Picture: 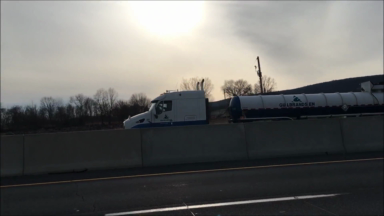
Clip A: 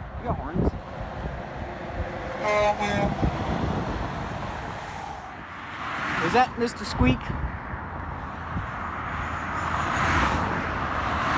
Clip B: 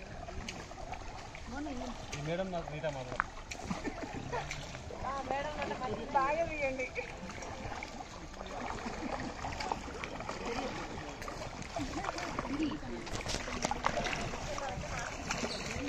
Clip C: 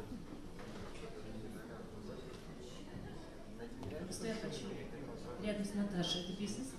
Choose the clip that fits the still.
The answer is A